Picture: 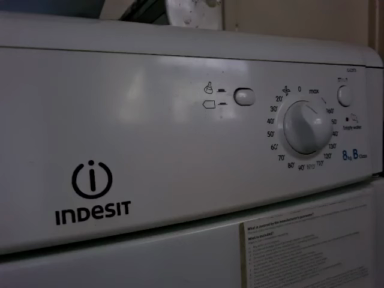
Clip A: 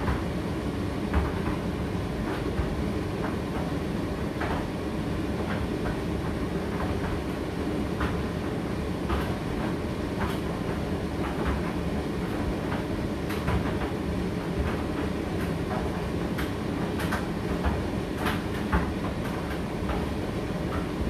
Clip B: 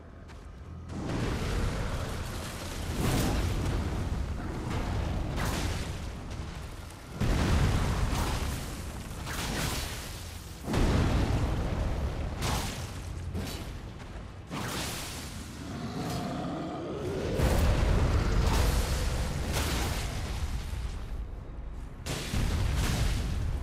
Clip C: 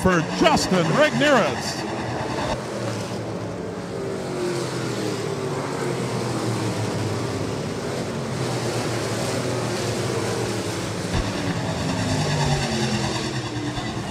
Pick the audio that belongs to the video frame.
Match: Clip A